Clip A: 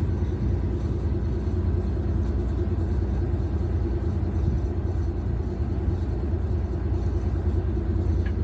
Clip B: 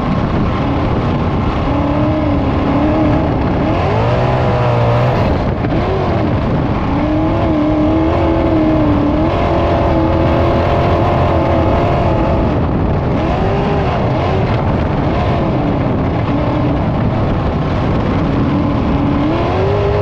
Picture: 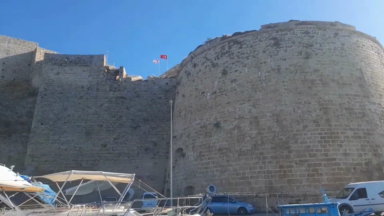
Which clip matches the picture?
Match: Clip A